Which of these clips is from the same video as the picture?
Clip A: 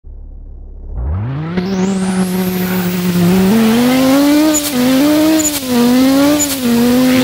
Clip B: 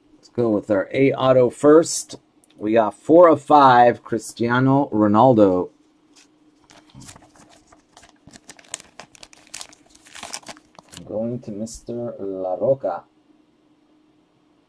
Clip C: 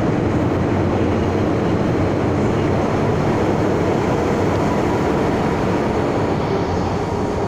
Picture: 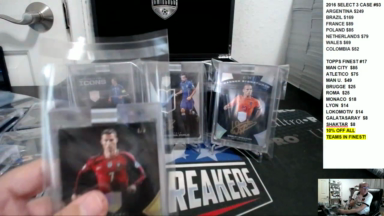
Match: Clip B